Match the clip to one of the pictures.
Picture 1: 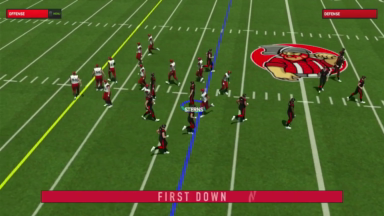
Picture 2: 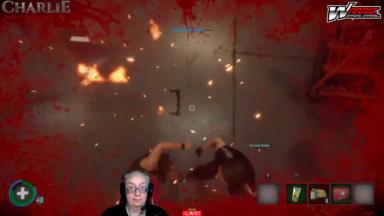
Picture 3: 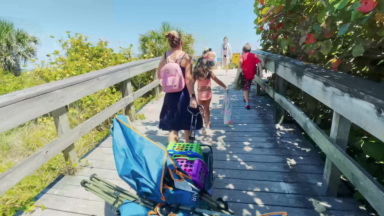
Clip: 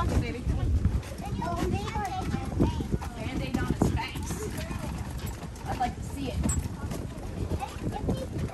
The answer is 3